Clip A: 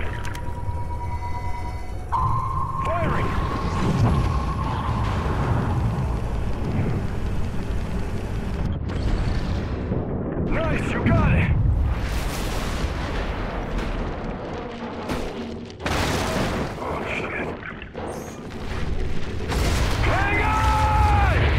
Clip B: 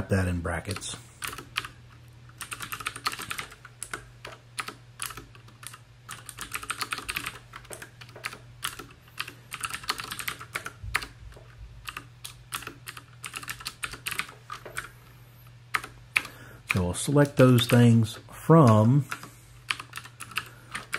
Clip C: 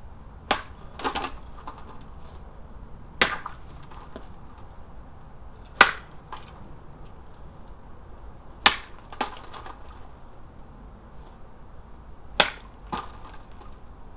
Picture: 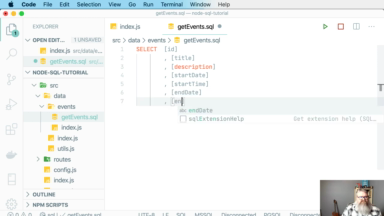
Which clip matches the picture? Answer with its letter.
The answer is B